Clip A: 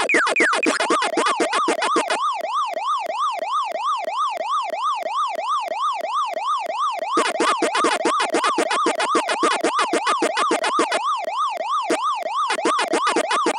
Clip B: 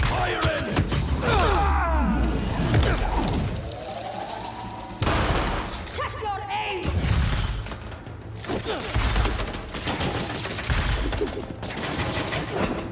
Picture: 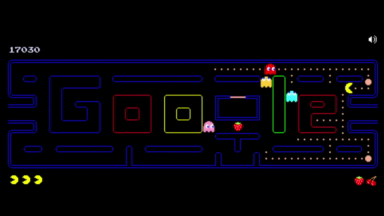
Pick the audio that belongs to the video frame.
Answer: A